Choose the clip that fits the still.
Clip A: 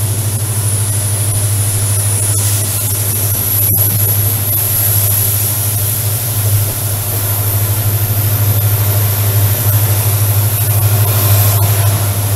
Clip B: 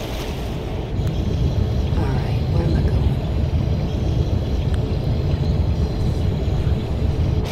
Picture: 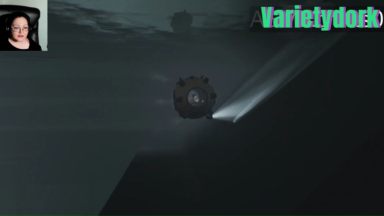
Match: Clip B